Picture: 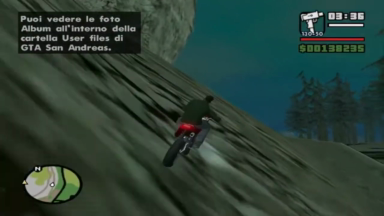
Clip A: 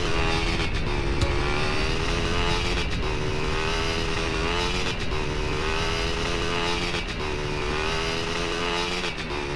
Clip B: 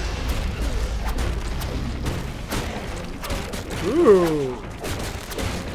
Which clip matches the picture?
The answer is A